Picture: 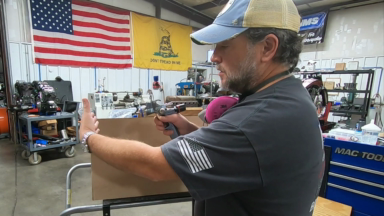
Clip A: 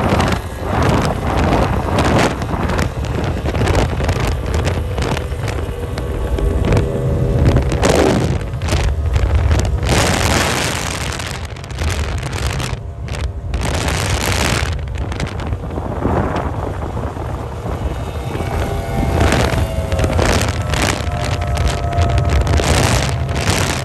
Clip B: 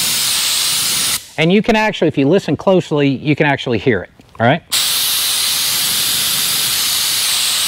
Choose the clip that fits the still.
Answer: B